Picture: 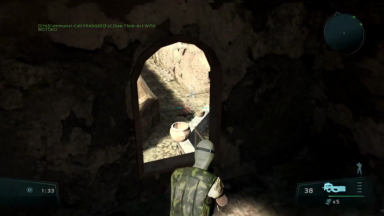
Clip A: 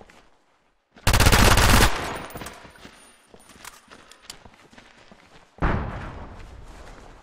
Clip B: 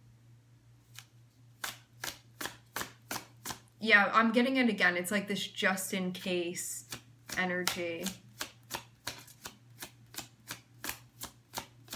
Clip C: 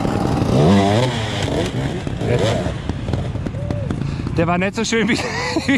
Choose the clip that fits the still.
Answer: A